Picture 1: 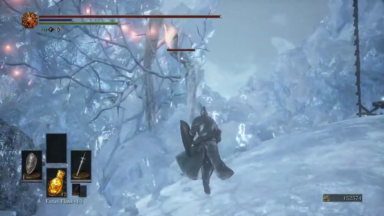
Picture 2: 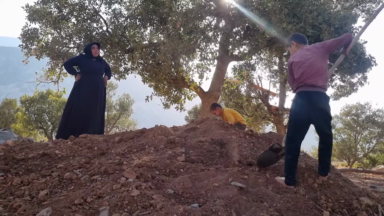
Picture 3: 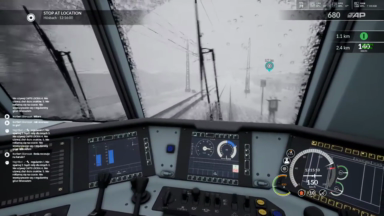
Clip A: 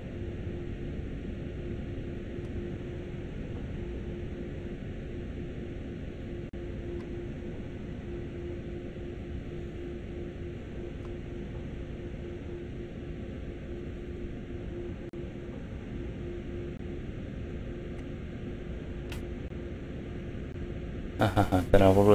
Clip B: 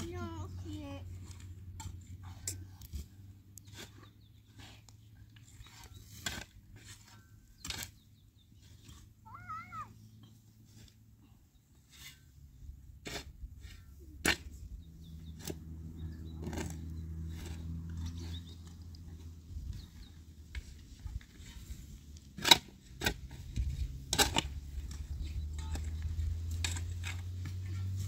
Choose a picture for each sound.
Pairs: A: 3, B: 2